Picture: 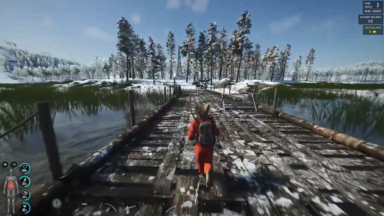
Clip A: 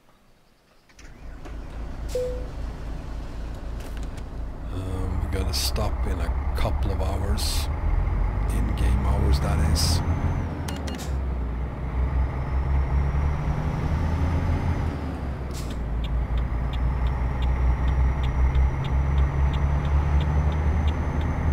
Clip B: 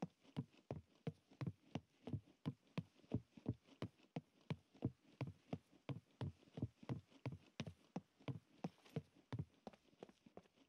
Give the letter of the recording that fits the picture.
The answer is B